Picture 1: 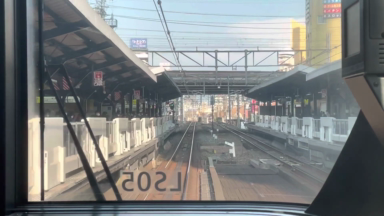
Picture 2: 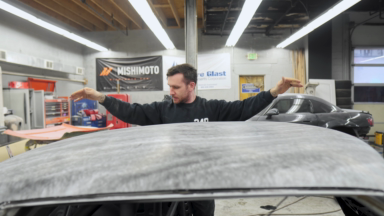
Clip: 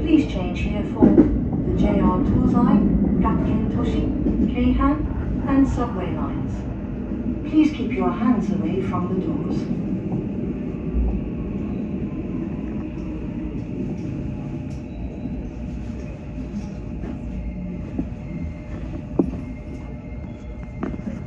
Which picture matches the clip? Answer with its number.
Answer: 1